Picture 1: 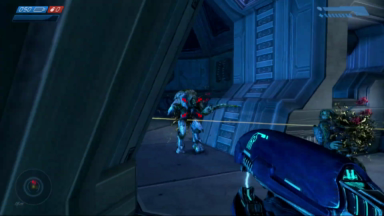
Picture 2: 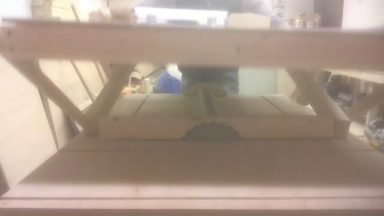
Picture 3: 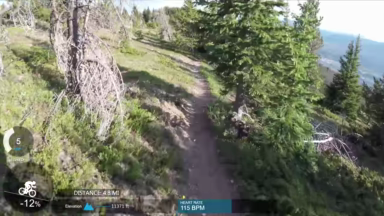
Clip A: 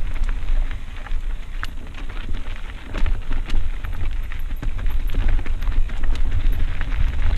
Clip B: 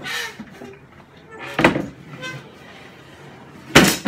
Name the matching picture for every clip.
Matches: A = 3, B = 2